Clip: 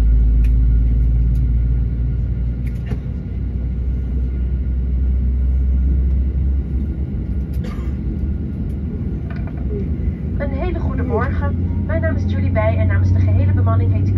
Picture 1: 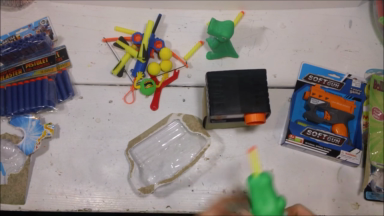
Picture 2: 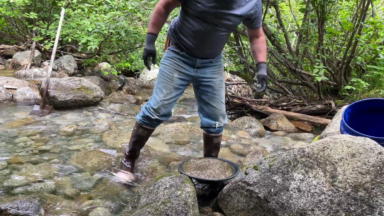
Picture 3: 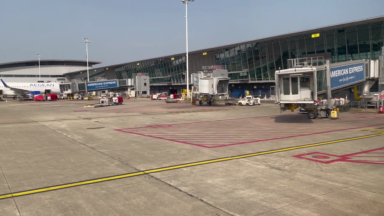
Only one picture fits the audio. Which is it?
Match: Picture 3